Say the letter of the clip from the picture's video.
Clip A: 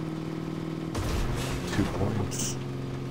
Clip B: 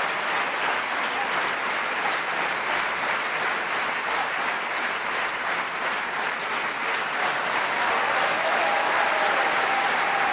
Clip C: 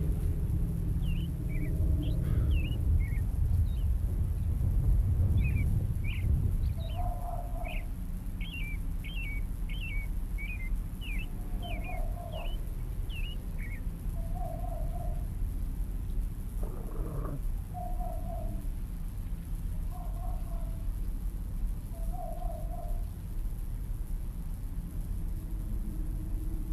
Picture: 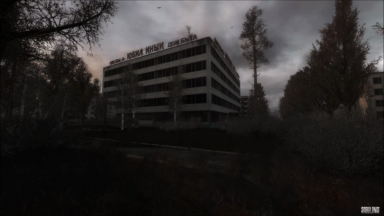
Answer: C